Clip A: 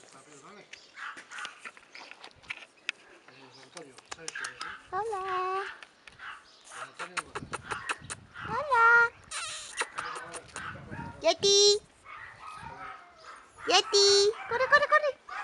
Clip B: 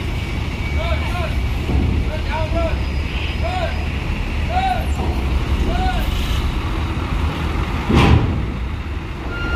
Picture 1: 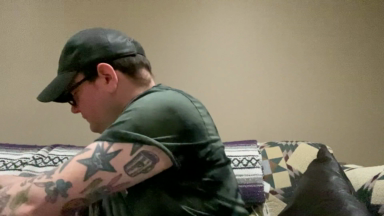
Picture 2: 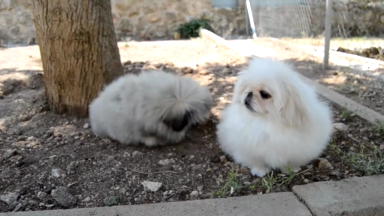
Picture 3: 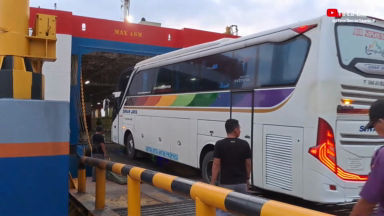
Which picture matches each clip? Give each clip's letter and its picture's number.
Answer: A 2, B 3